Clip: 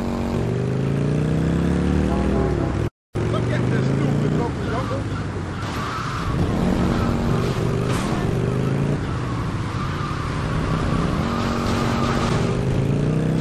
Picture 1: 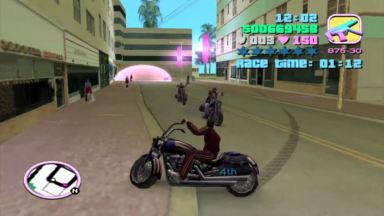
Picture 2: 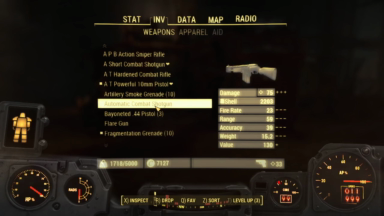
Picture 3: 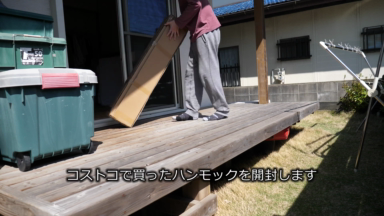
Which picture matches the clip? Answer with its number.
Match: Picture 1